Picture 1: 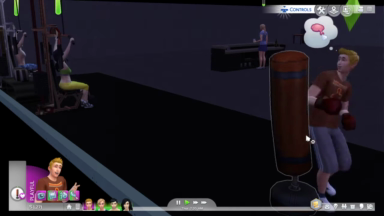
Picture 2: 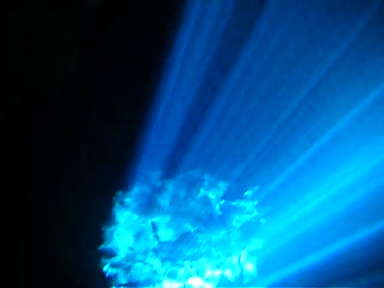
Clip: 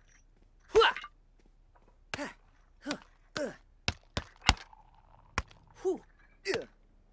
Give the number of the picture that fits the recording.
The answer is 1